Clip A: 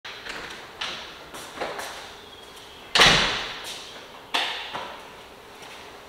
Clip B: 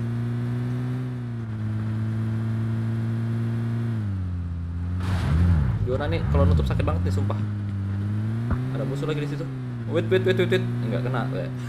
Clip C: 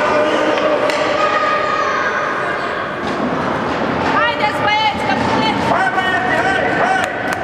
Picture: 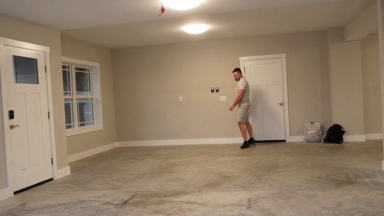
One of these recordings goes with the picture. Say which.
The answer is A